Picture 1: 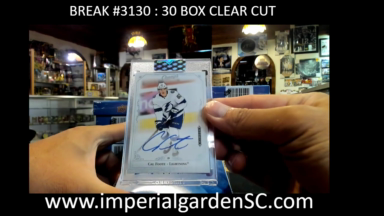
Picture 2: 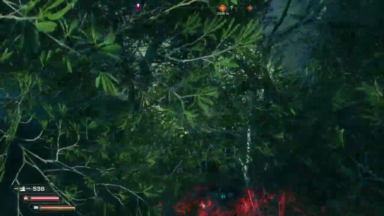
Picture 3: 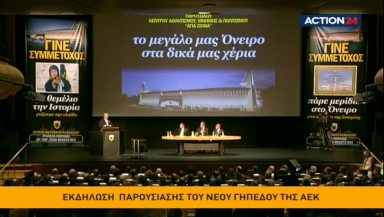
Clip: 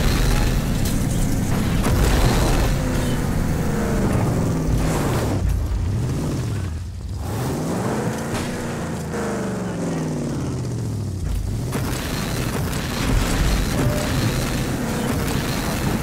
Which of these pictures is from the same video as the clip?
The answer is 2